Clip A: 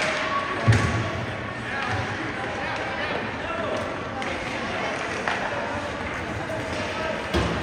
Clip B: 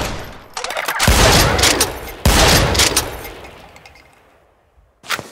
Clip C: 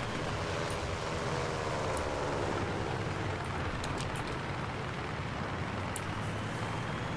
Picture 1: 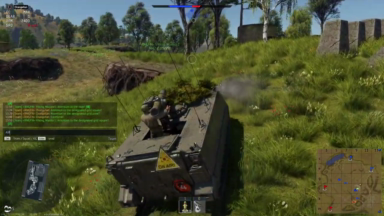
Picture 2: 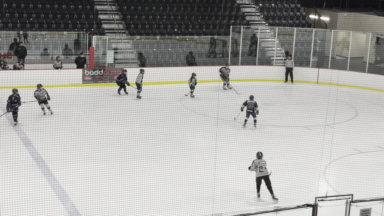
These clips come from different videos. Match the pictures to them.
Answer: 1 C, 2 A